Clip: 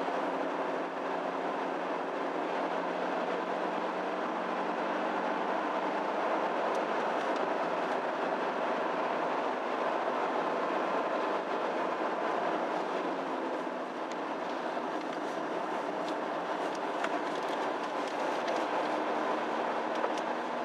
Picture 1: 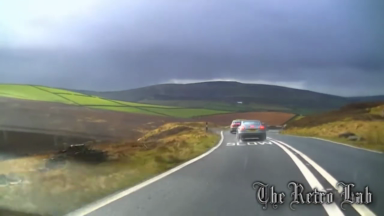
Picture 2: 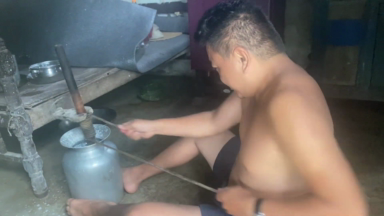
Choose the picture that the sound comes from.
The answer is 1